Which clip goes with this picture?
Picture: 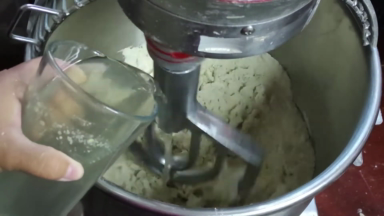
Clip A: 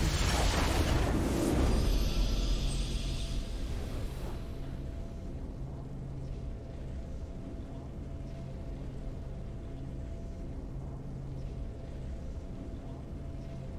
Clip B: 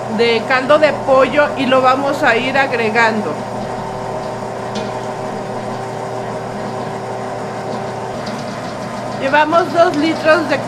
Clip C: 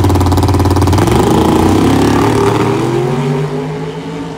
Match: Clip B